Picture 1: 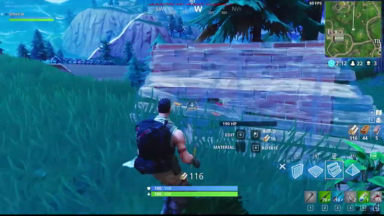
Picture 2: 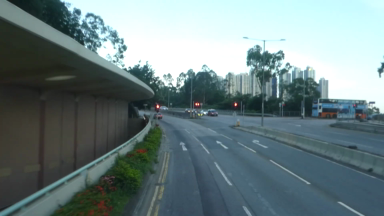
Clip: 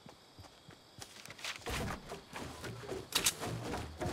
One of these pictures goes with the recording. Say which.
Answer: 1